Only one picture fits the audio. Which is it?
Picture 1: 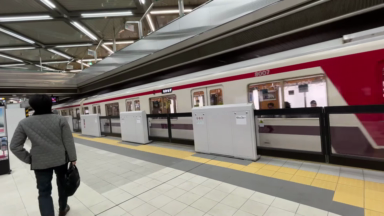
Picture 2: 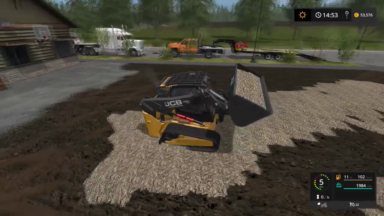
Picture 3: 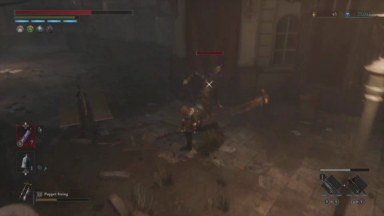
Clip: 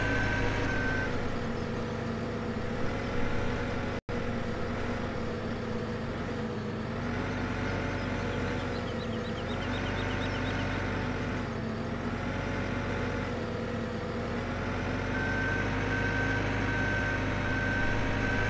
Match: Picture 2